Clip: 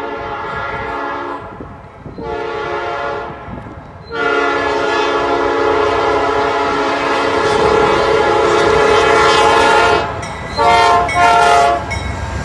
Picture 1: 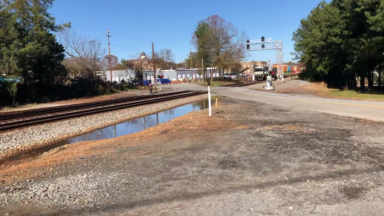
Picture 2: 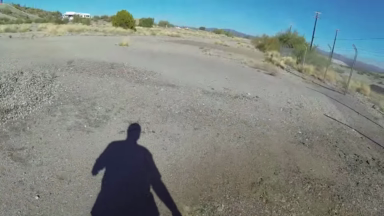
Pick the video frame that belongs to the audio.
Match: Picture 1